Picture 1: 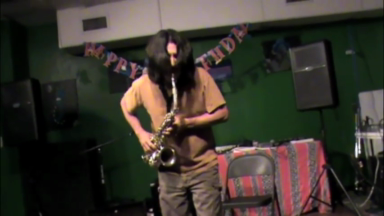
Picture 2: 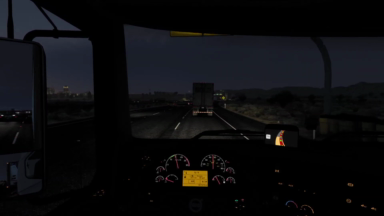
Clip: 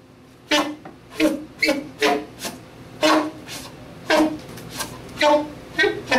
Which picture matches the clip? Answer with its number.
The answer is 1